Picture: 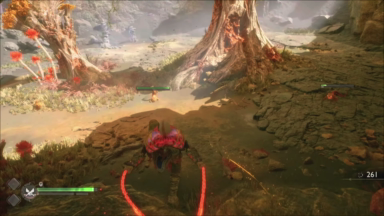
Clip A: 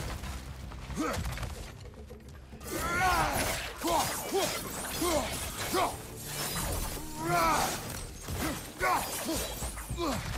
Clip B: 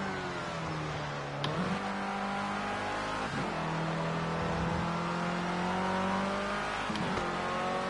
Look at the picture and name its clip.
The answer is A